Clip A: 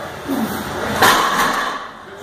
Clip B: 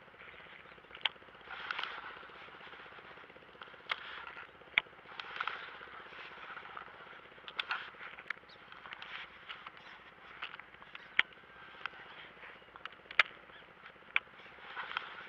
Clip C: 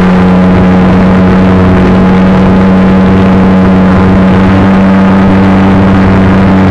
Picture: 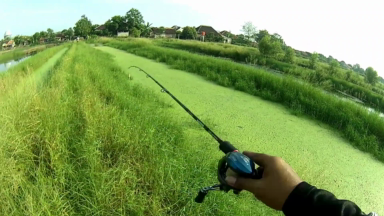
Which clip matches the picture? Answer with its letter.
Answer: B